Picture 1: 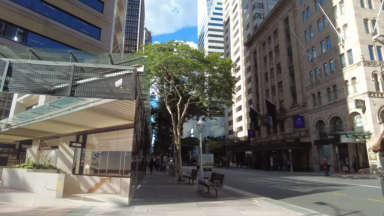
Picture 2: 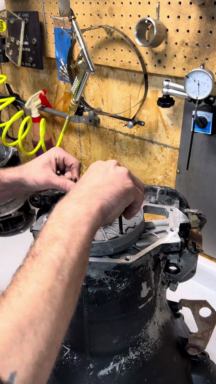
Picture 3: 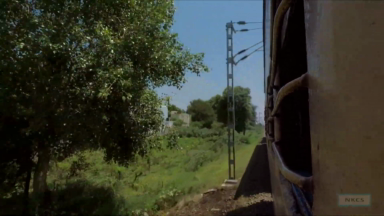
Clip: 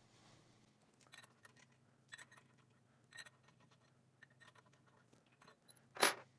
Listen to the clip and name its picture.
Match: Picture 2